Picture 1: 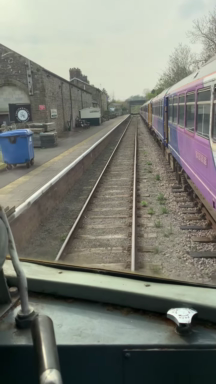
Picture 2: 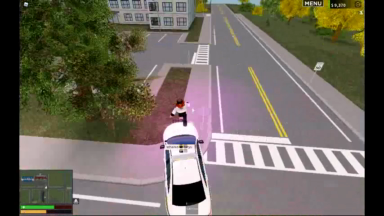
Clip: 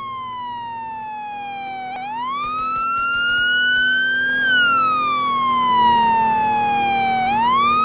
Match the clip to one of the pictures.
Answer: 2